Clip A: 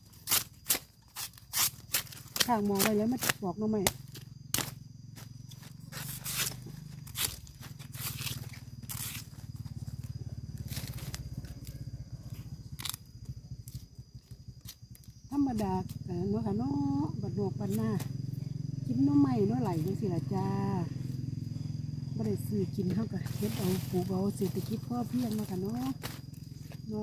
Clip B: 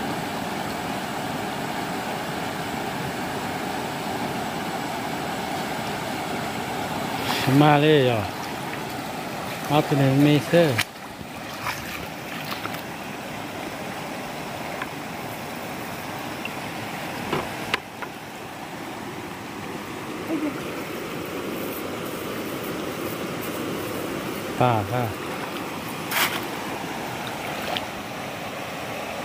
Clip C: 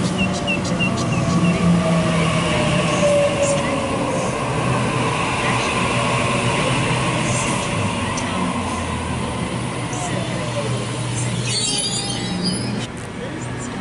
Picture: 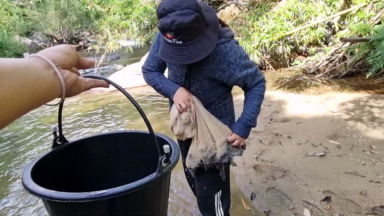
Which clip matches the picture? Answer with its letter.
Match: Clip B